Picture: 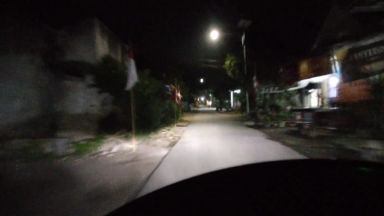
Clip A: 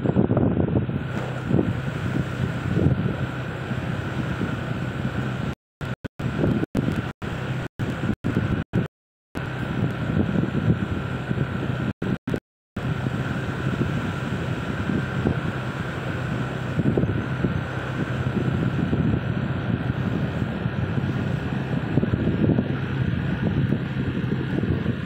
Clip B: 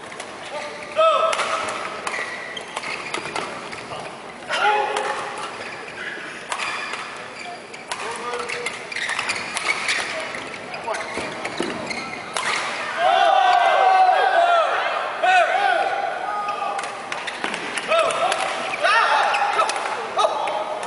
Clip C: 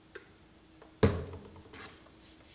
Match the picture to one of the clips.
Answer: A